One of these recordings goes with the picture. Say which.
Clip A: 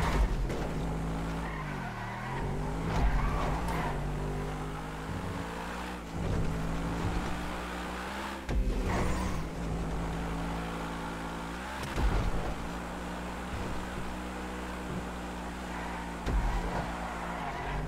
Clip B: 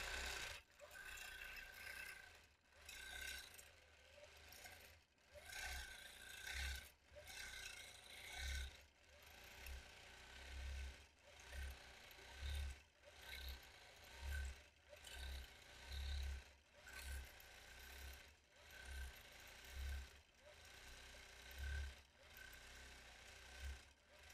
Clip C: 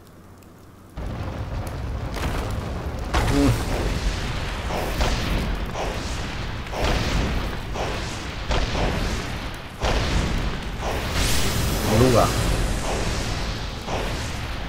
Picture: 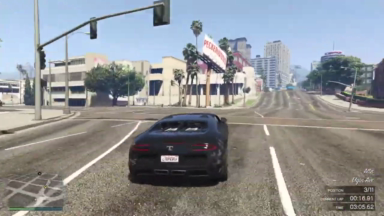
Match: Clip A